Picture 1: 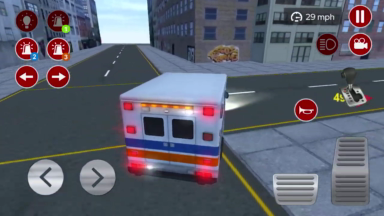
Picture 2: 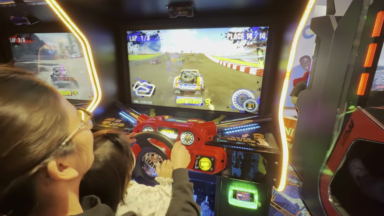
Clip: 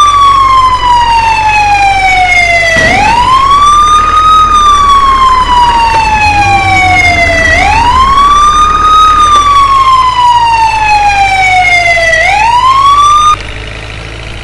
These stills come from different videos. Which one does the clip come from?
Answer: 1